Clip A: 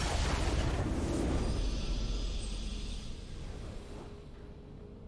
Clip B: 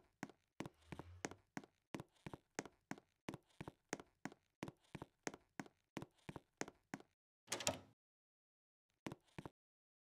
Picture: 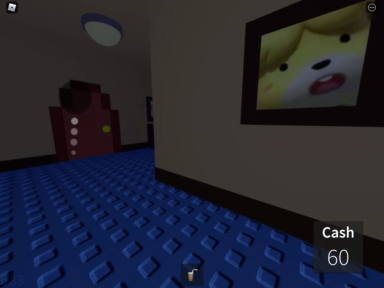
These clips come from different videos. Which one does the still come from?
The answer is B